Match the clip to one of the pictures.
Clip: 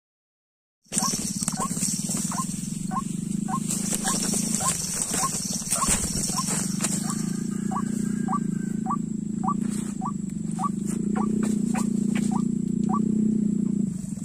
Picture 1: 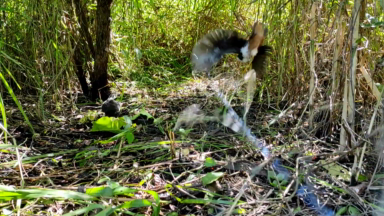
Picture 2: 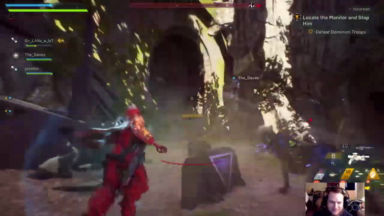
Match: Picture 1